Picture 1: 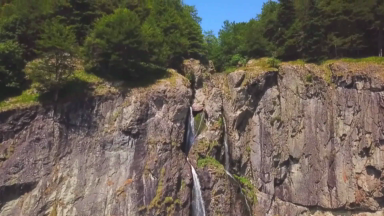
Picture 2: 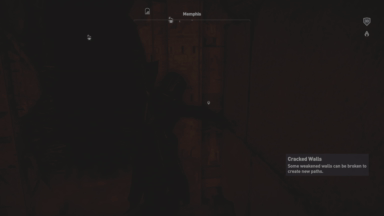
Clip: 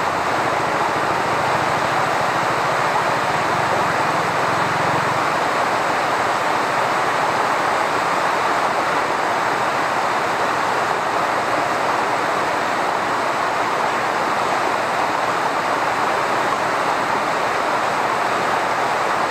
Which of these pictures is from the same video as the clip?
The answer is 1